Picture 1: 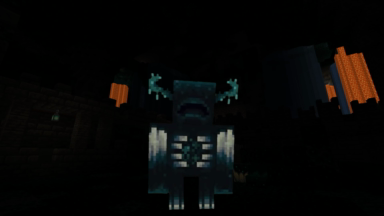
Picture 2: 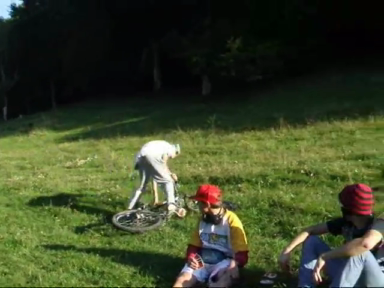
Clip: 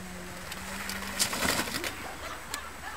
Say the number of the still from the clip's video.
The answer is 2